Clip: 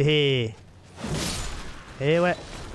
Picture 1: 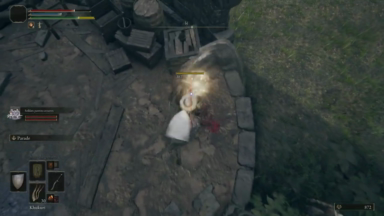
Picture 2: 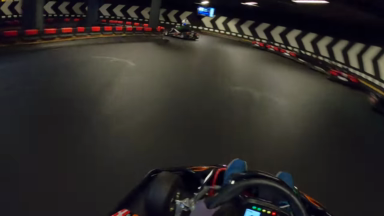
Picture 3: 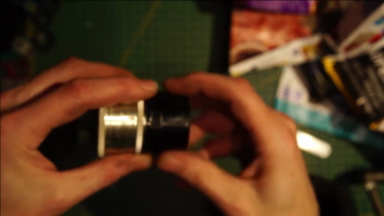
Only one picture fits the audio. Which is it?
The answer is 1